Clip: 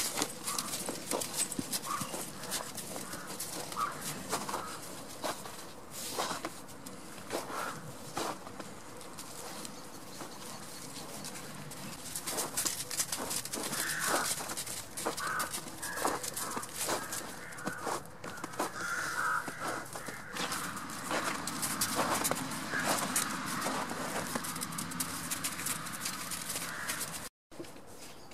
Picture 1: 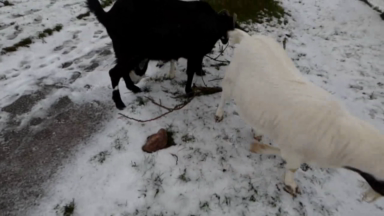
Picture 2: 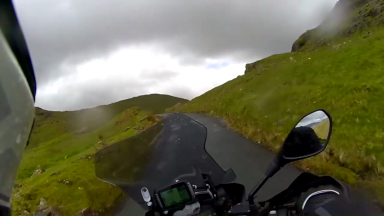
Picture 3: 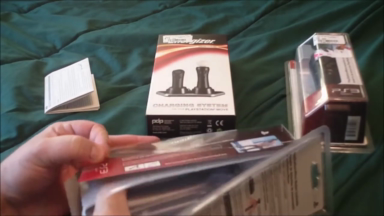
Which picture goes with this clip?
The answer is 1